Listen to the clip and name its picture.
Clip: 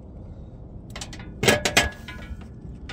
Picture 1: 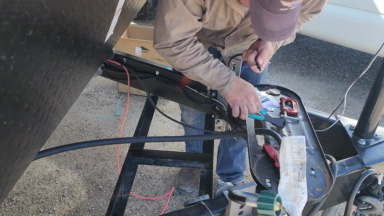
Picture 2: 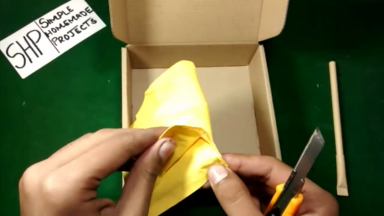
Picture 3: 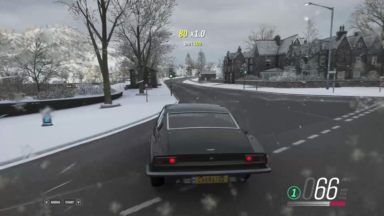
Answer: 1